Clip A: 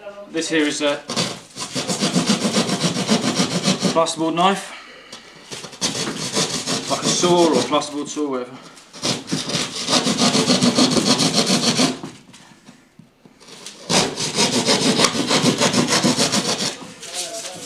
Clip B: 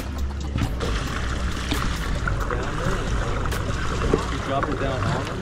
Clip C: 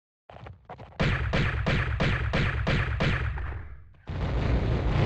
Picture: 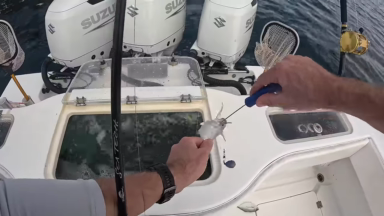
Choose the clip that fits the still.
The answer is B